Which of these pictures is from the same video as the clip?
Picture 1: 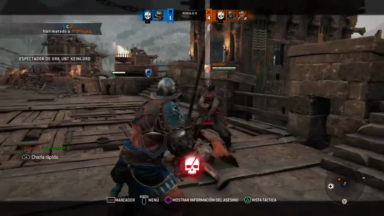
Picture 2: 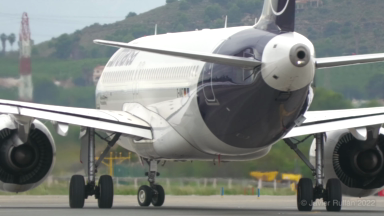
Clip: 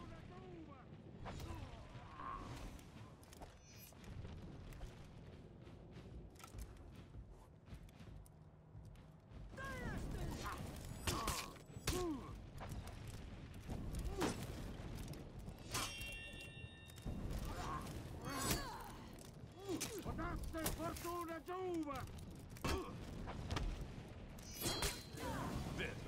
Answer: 1